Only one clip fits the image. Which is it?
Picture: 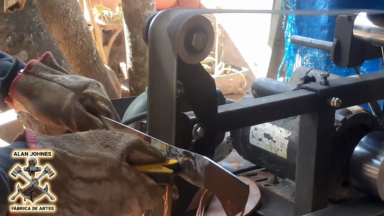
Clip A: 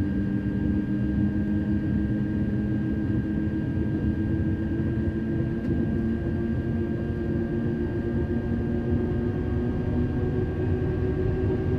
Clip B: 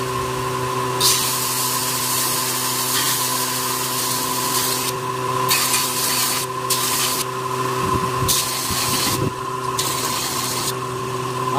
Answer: B